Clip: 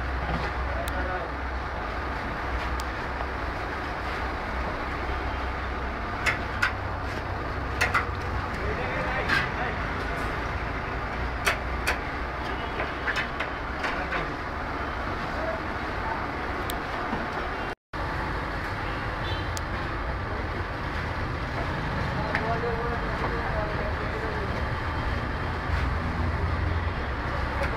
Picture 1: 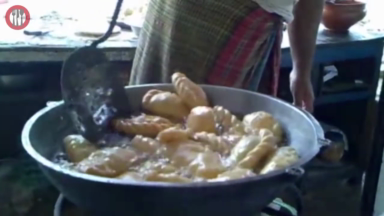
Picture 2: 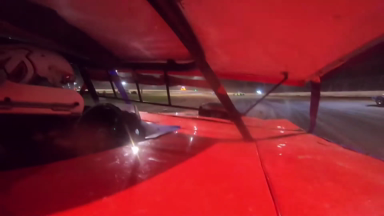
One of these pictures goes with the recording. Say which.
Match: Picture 1